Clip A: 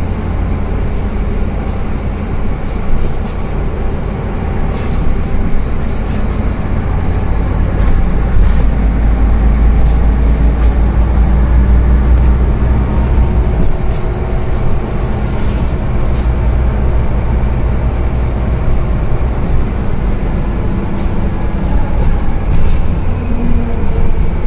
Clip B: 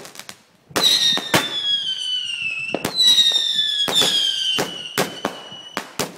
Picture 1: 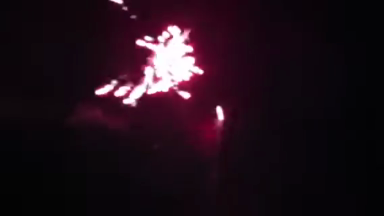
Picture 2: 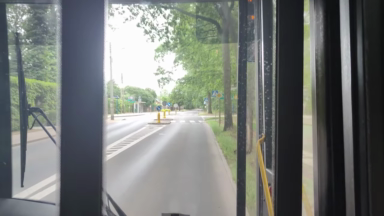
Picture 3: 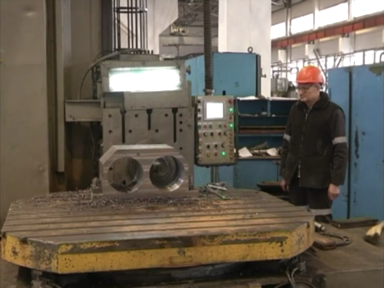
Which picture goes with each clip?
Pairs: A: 2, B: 1